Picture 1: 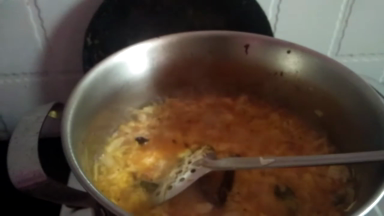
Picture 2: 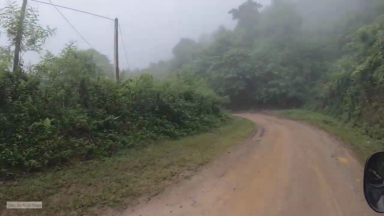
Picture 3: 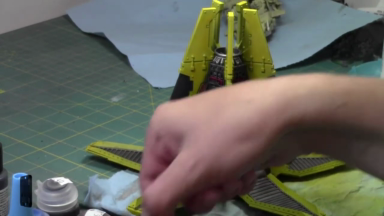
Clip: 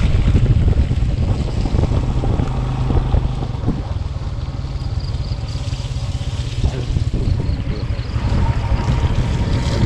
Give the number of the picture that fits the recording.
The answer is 2